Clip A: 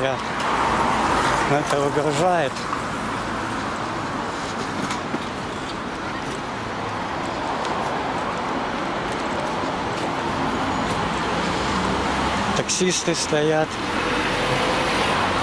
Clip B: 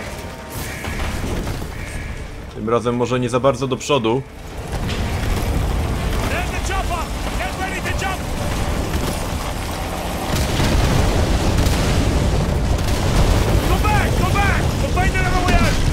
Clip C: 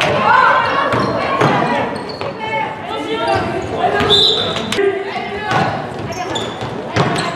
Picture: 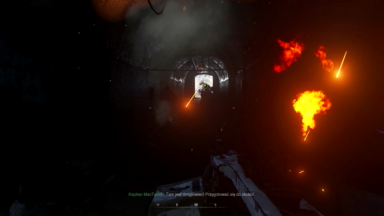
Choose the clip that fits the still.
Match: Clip B